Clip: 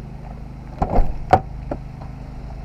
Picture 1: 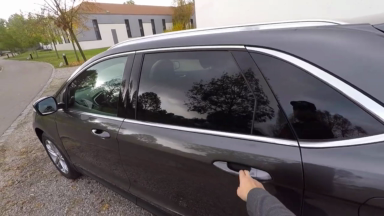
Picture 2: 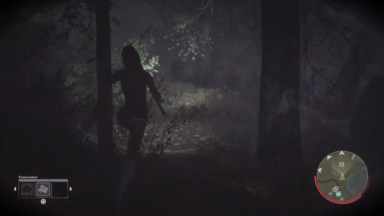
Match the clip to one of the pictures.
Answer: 1